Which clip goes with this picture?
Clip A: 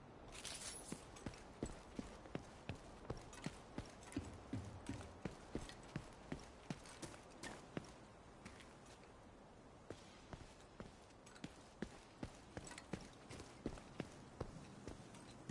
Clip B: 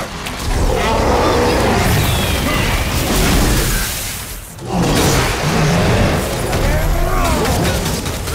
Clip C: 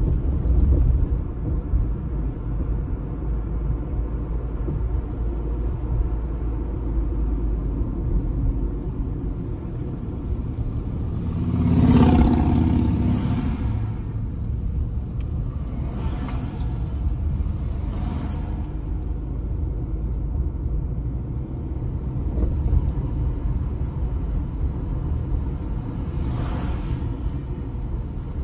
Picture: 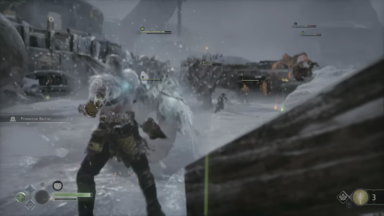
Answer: B